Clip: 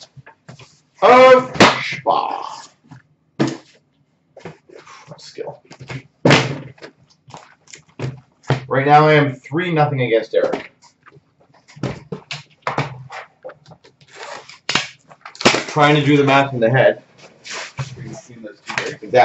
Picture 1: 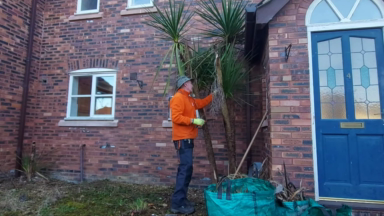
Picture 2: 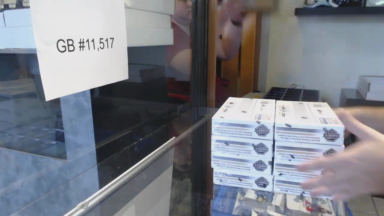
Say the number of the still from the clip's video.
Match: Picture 2